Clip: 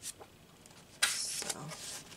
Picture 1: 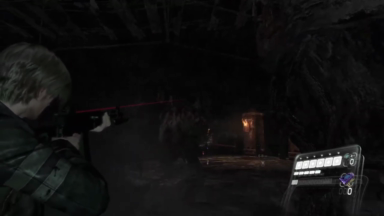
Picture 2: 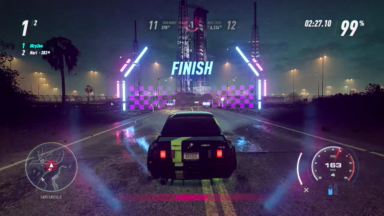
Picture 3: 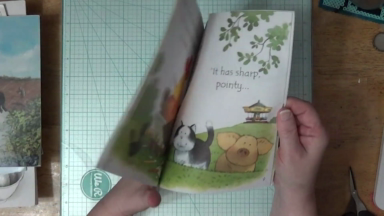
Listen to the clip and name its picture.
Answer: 3